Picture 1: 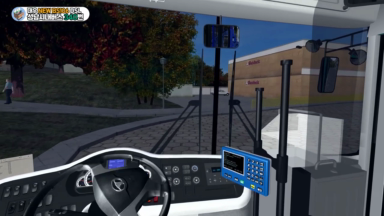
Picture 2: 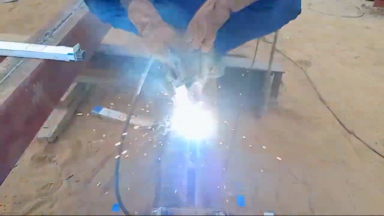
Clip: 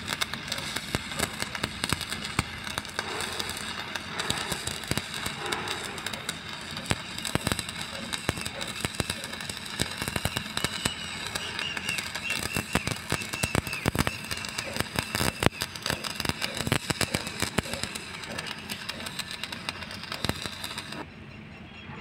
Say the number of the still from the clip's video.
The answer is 2